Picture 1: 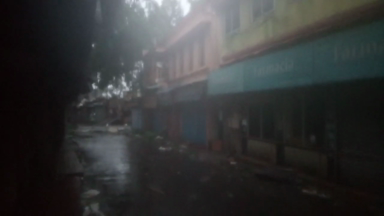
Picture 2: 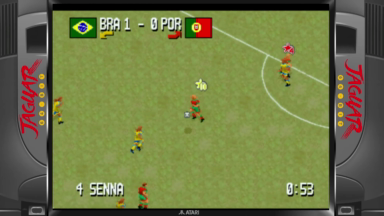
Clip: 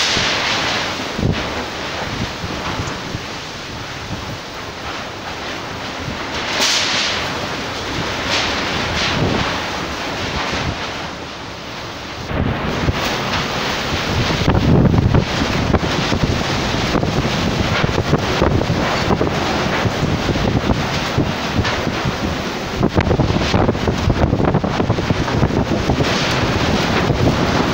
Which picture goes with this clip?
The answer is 1